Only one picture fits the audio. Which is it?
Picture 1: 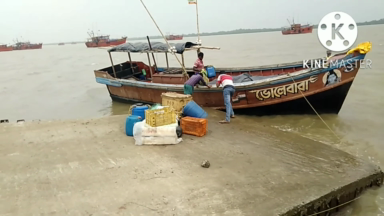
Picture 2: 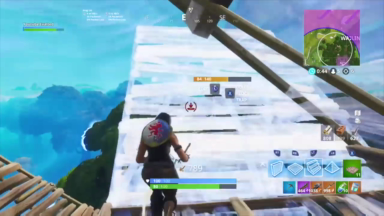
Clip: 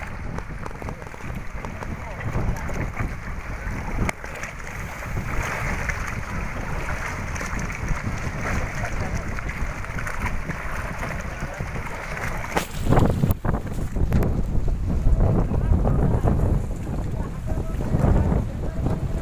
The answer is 1